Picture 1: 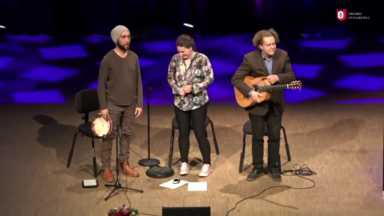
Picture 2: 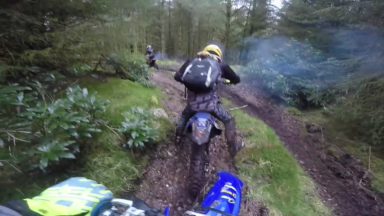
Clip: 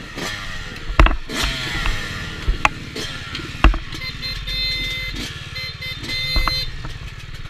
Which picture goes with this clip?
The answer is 2